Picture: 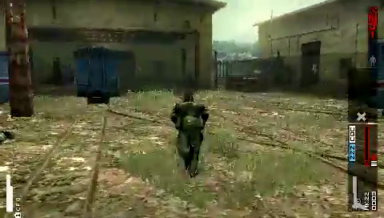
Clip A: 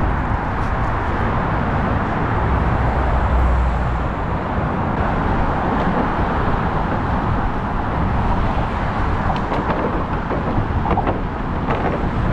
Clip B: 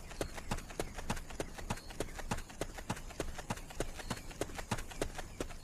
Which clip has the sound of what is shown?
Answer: B